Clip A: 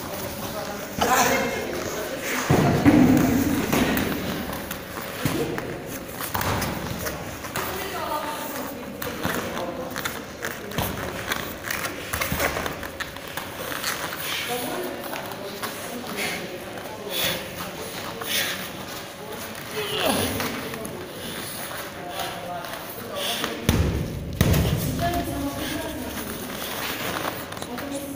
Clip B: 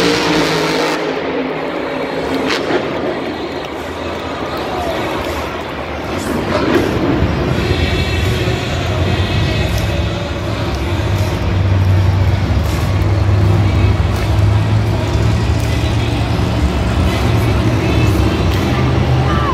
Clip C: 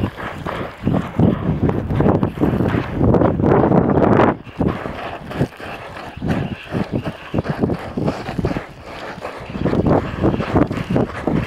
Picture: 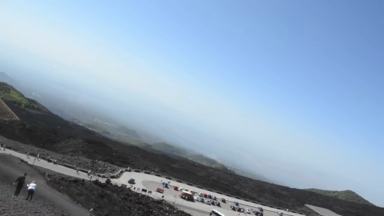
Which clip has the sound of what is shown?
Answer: C